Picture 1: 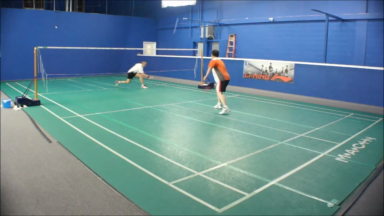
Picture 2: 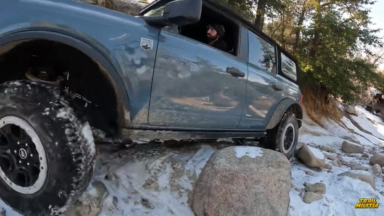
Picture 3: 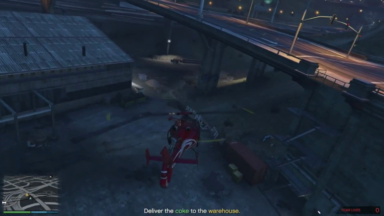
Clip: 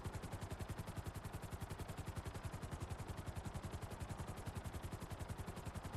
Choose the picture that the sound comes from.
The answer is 3